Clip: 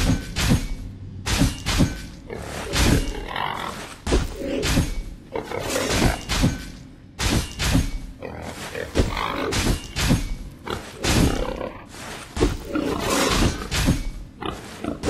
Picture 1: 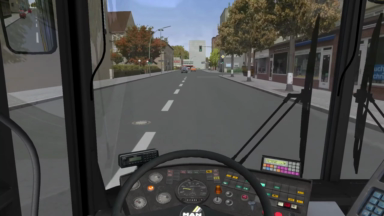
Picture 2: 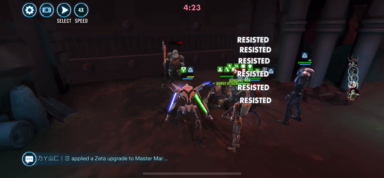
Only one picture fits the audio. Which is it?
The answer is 2